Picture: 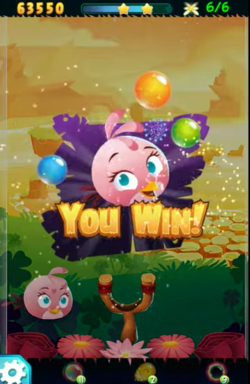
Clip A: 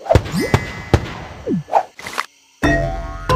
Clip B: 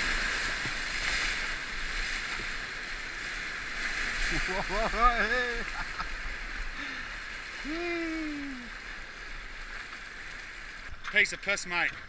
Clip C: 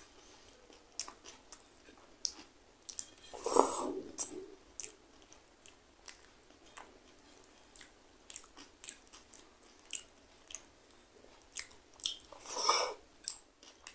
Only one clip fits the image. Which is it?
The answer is A